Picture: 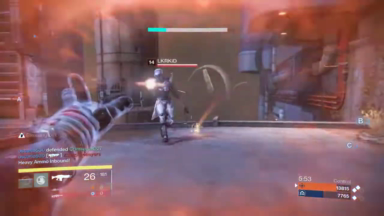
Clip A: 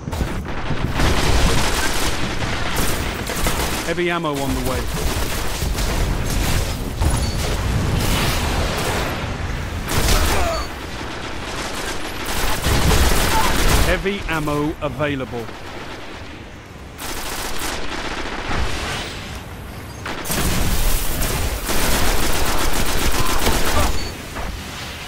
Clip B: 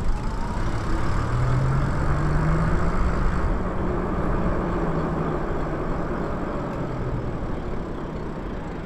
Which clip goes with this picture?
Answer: A